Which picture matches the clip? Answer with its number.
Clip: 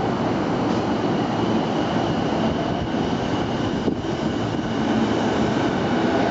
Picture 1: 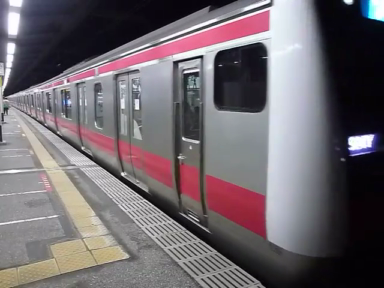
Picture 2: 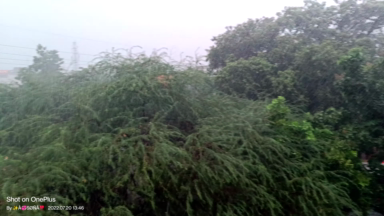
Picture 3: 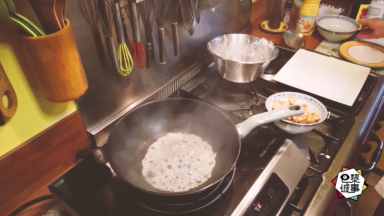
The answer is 1